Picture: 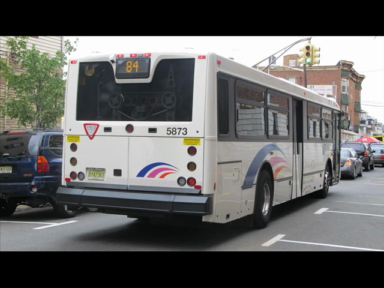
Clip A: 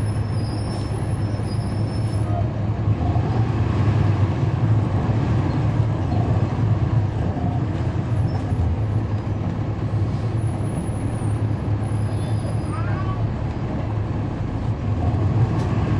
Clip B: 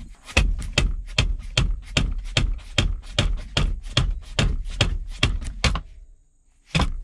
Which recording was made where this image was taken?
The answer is A